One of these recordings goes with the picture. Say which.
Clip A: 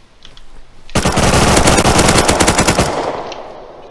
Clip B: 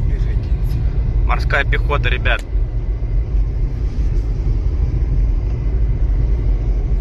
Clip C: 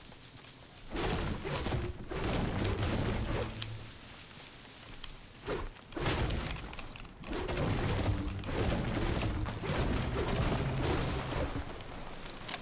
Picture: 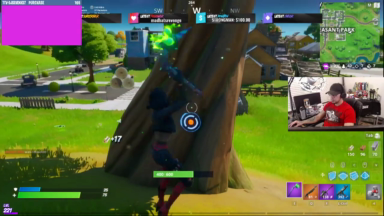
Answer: C